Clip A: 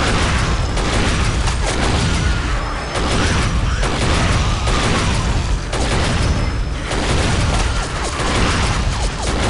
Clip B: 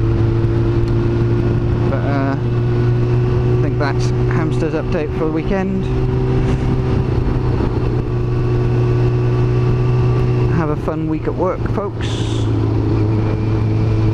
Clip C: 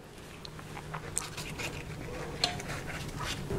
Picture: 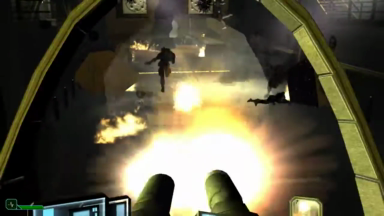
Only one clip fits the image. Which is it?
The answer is A